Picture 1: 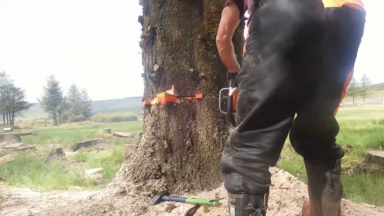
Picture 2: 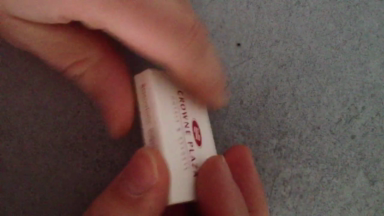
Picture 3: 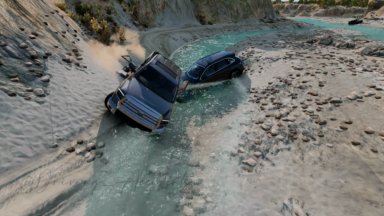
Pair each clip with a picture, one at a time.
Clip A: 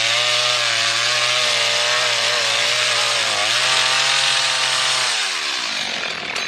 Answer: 1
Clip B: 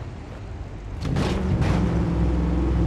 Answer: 3